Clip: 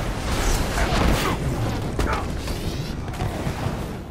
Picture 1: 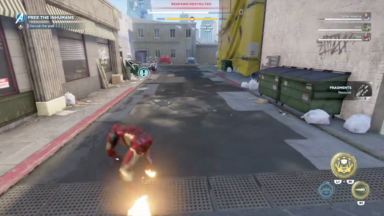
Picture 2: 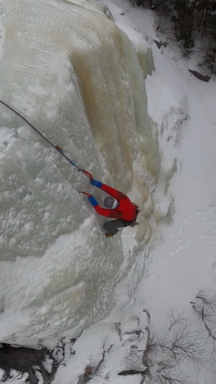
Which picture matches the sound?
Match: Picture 1